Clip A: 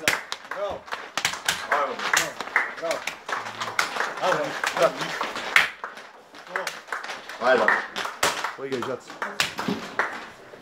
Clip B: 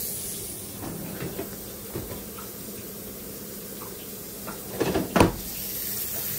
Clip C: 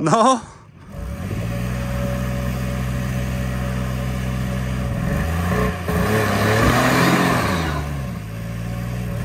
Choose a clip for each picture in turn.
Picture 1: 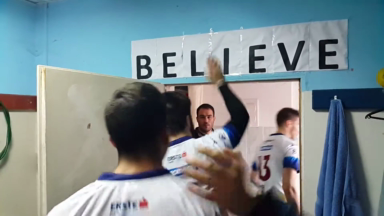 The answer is A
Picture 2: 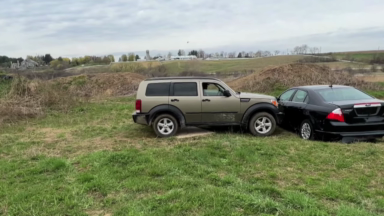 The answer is C